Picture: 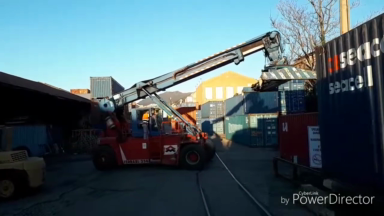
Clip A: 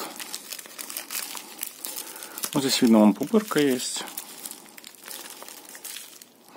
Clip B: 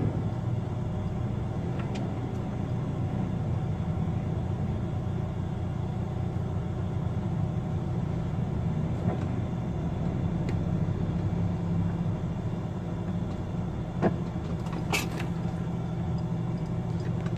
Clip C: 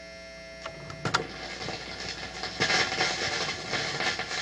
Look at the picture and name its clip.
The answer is B